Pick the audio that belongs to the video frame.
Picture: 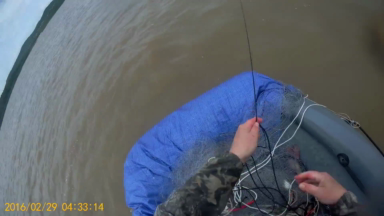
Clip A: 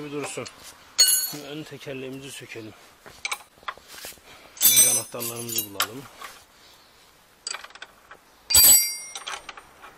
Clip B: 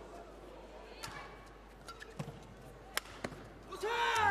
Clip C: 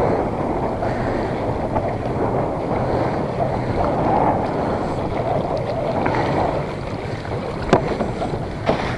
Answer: C